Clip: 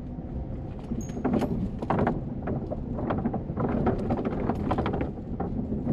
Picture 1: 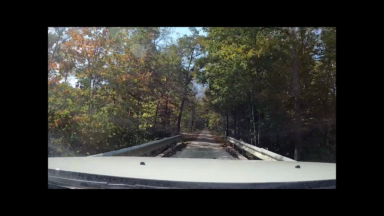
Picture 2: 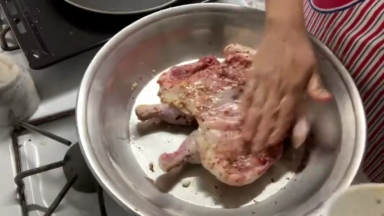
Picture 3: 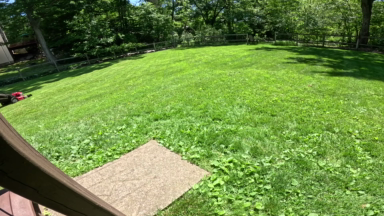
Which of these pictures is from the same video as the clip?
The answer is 1